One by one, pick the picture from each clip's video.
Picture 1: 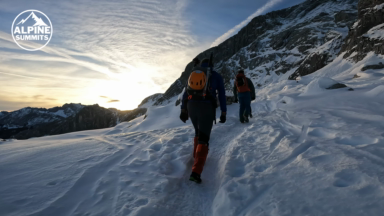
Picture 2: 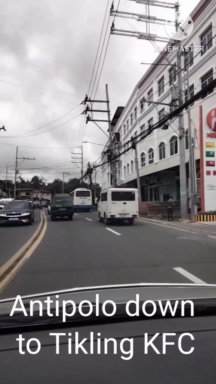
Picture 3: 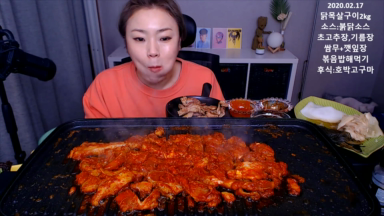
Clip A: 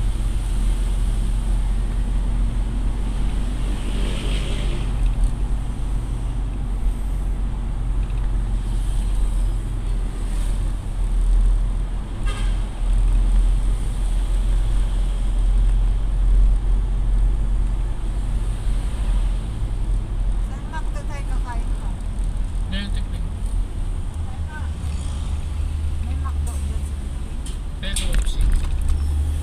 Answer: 2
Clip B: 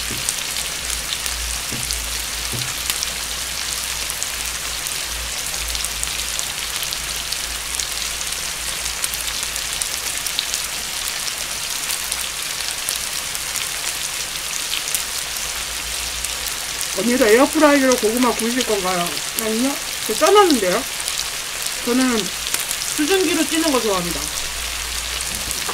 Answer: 3